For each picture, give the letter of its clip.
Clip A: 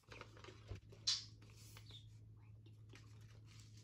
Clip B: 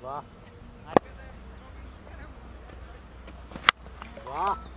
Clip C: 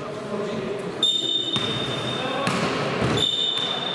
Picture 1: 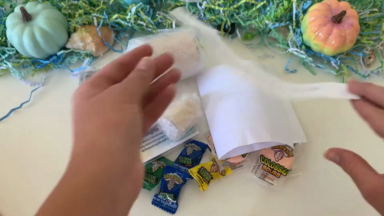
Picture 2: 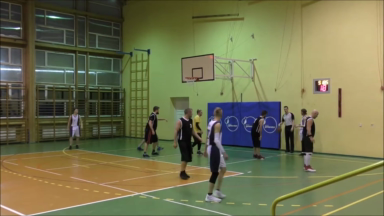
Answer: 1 A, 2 C